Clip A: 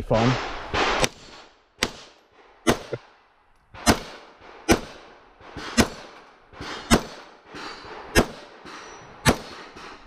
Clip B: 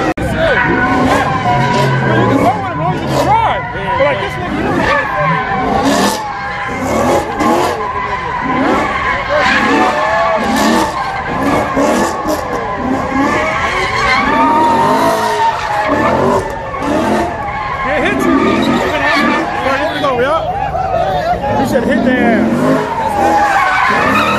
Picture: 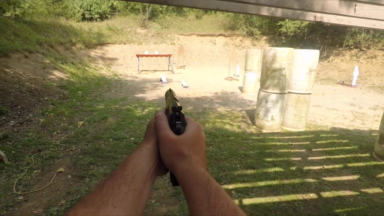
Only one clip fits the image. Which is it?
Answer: A